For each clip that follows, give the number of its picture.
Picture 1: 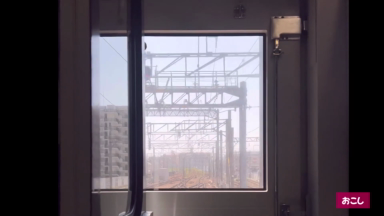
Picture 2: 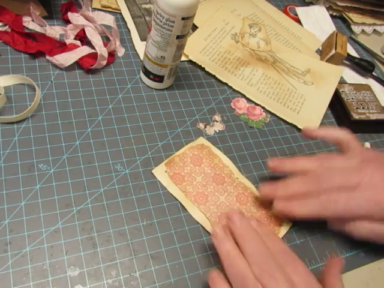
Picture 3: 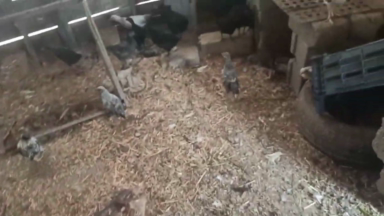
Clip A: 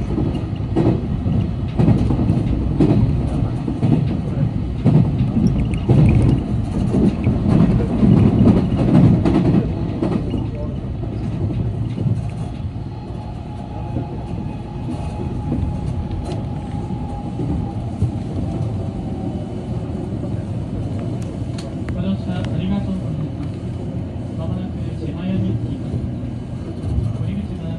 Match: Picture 1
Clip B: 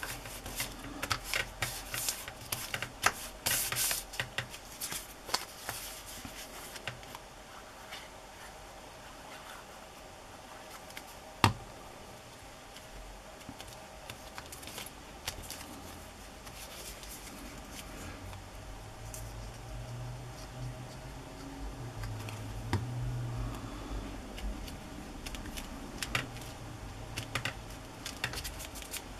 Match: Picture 2